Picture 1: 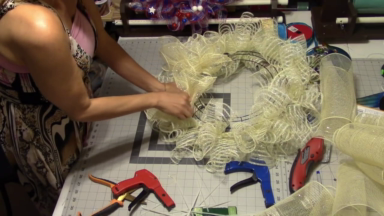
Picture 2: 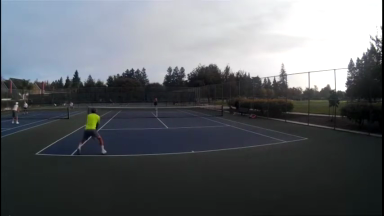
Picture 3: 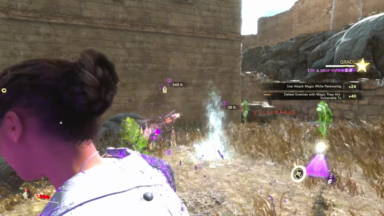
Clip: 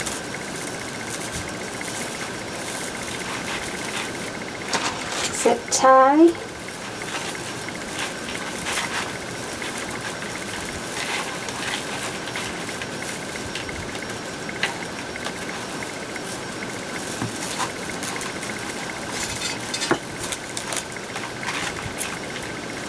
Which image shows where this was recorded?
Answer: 1